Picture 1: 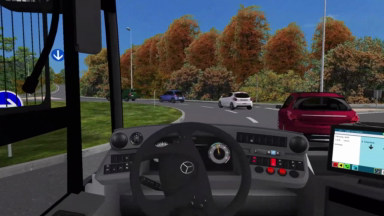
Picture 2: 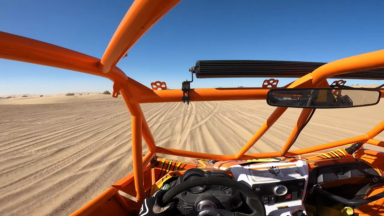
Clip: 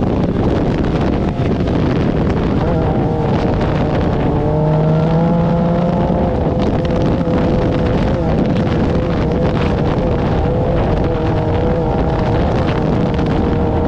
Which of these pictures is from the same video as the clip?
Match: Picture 2